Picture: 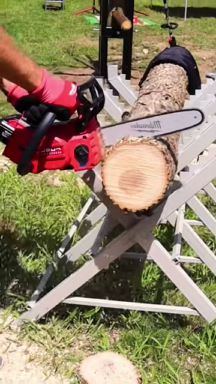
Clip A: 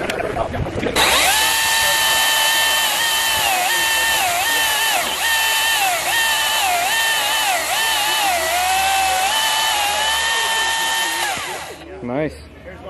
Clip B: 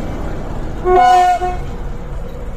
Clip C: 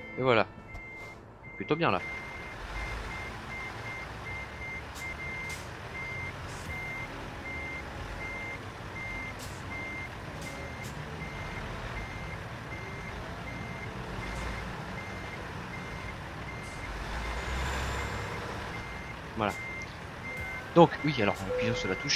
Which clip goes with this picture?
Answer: A